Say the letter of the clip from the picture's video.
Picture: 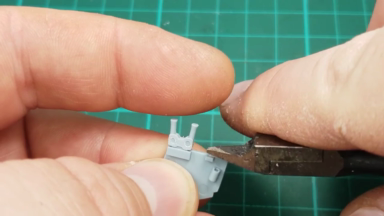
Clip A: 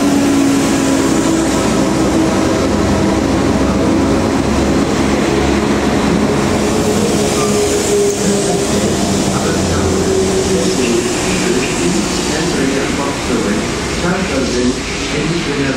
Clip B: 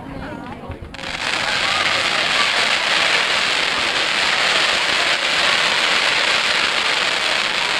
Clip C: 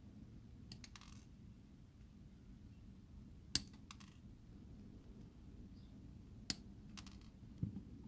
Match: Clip C